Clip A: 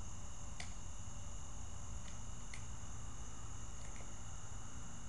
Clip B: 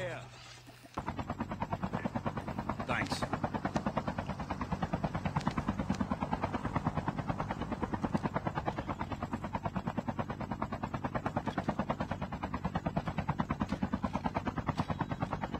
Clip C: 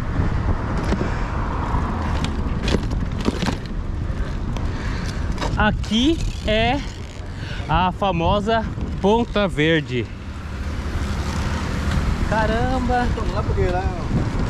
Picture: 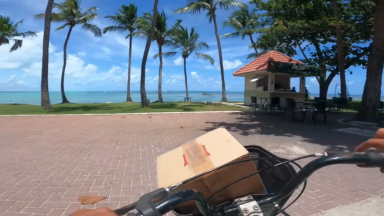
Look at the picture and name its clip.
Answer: C